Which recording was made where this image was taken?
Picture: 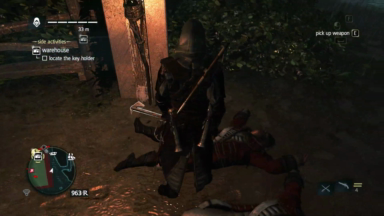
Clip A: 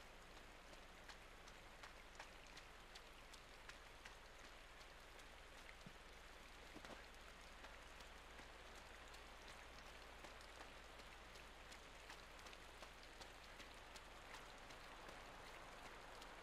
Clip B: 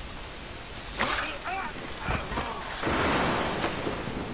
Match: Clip B